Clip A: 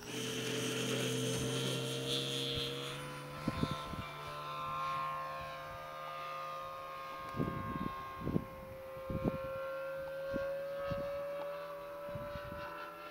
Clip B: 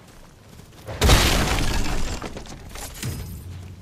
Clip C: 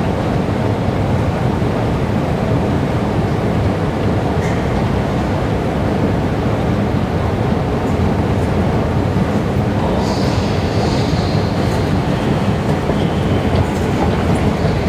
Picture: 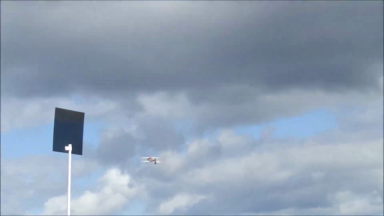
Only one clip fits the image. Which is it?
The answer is A